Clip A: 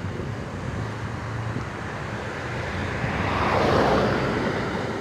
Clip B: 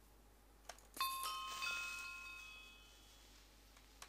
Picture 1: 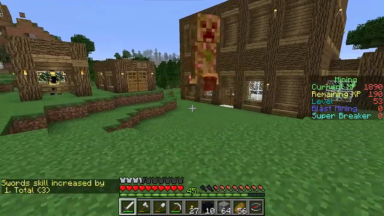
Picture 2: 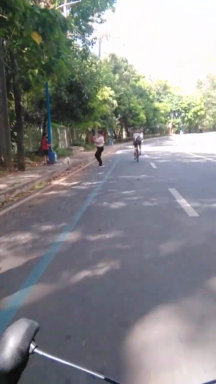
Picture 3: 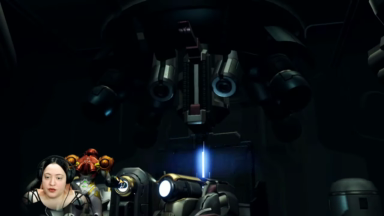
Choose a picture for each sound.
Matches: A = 2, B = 1